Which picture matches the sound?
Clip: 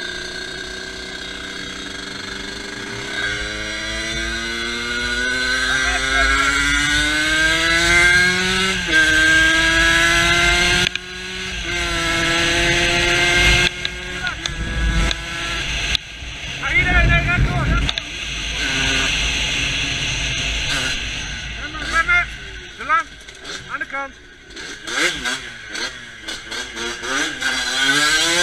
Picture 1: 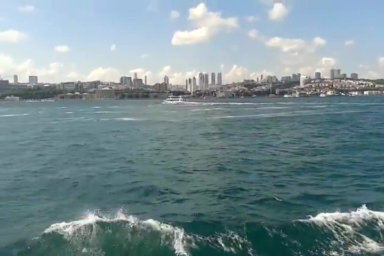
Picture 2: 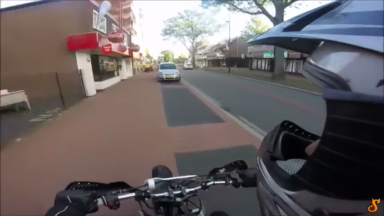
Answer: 2